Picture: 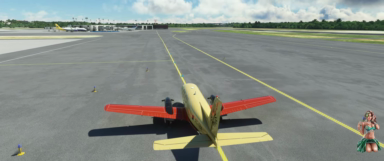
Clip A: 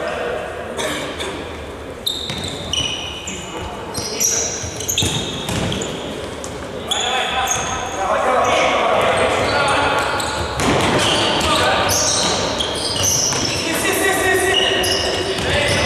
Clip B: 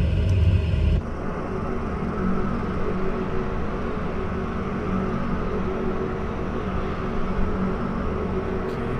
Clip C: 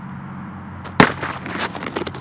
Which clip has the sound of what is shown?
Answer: B